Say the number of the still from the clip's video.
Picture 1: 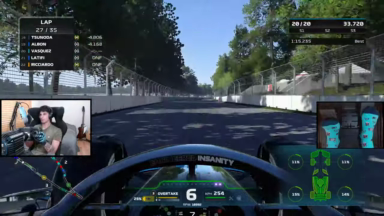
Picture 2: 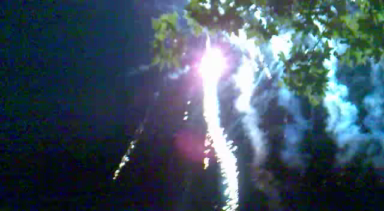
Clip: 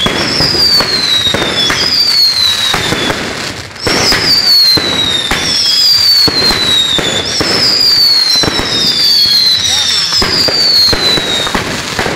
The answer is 2